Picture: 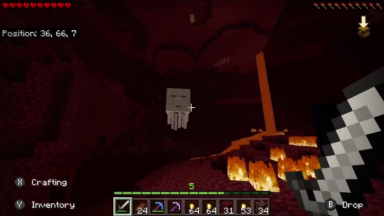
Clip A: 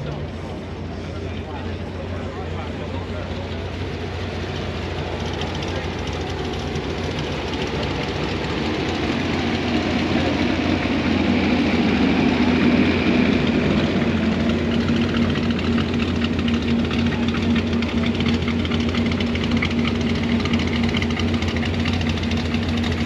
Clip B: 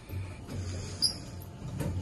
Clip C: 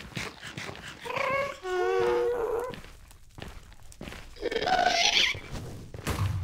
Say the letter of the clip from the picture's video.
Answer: C